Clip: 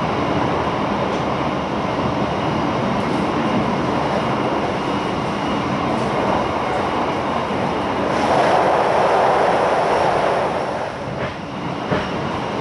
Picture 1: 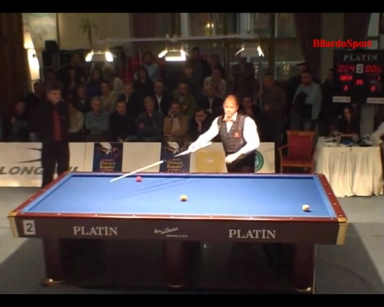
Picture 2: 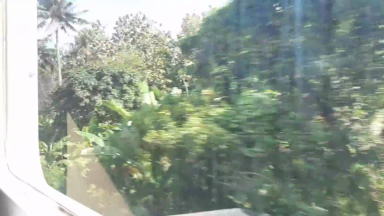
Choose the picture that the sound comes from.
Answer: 2